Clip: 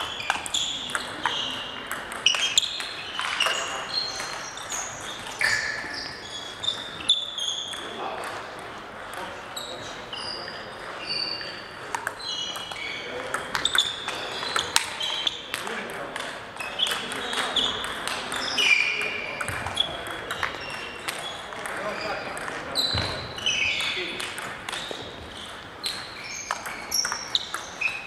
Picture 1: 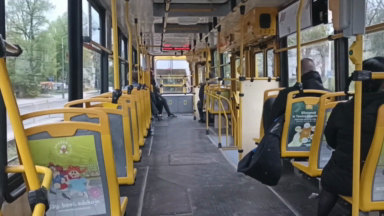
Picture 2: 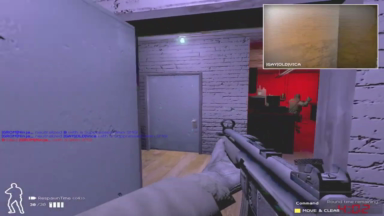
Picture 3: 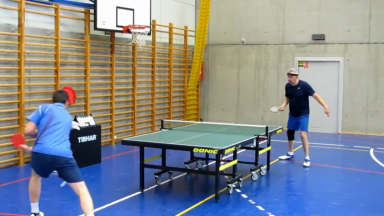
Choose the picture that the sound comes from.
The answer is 3